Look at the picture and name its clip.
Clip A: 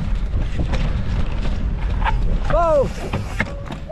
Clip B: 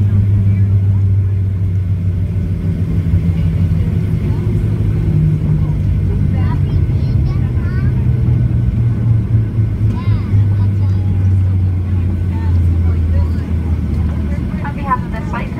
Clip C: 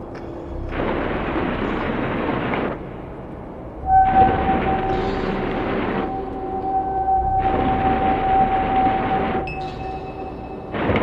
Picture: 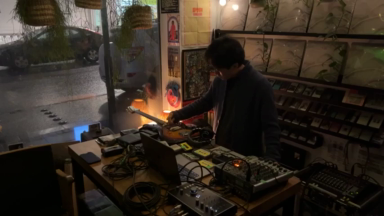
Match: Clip C